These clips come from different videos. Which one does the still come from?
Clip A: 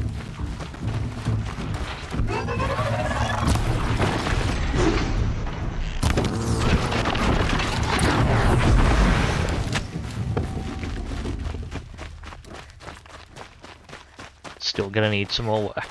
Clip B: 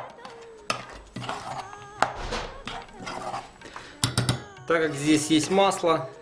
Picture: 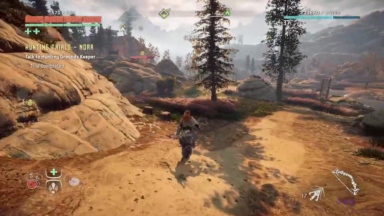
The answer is A